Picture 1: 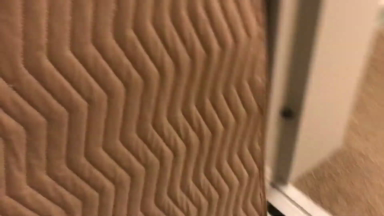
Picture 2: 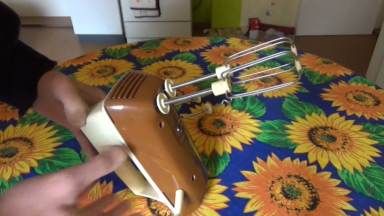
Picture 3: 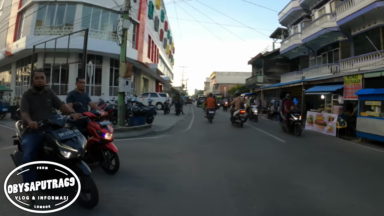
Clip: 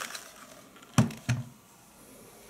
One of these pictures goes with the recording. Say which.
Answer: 2